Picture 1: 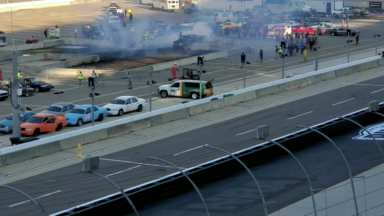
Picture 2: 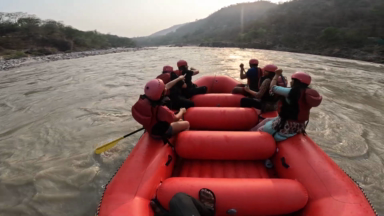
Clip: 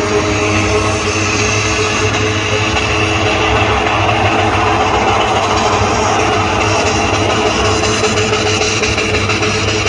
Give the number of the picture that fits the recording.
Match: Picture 1